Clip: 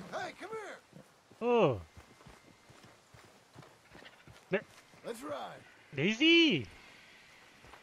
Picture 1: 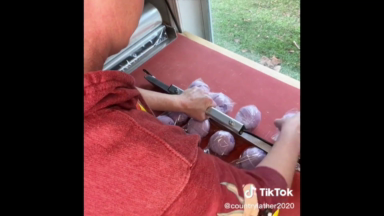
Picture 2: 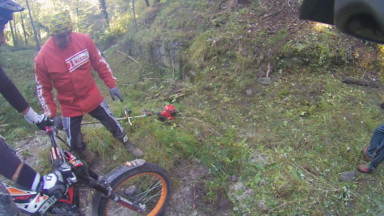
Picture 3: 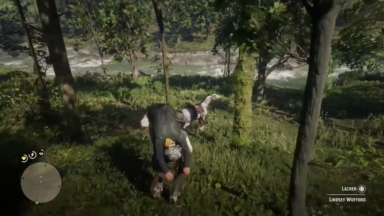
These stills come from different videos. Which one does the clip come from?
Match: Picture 3